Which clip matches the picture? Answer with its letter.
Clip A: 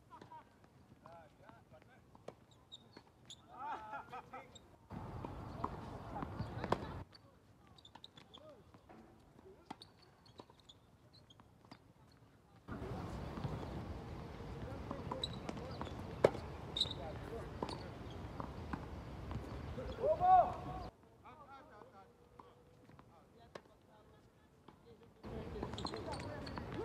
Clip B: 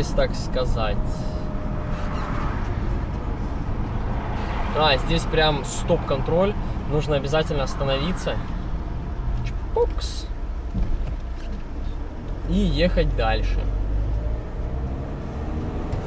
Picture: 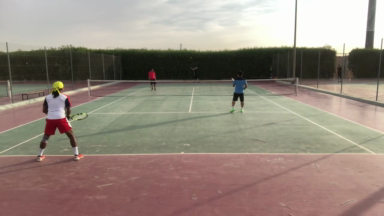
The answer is A